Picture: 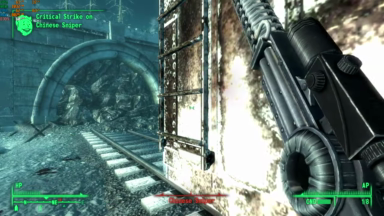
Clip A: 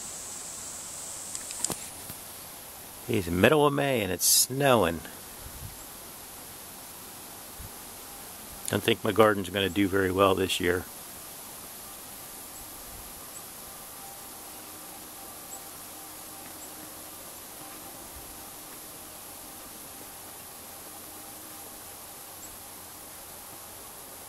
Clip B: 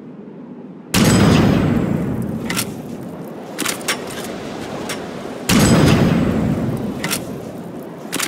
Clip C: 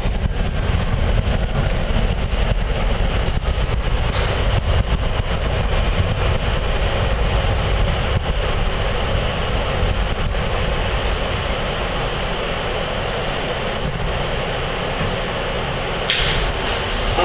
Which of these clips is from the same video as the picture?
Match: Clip B